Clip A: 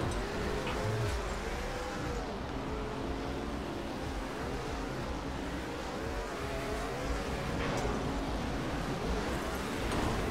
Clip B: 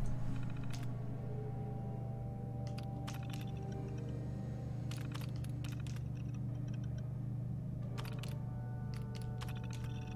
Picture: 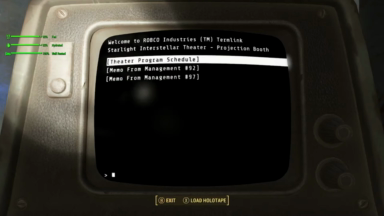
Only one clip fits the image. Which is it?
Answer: B